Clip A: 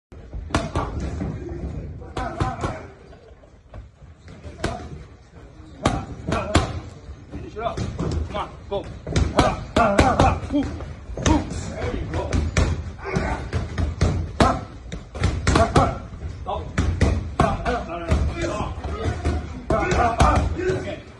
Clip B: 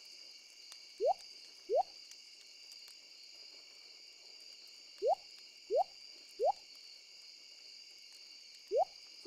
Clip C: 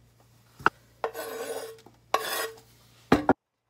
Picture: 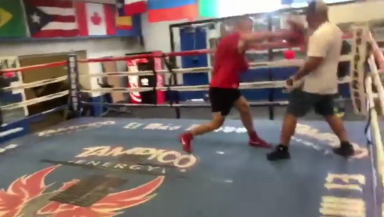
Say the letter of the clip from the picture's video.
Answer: A